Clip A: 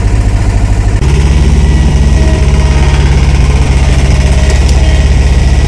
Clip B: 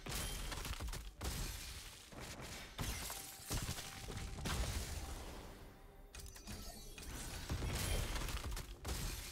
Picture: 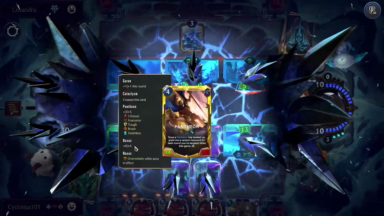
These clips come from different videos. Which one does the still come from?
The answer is B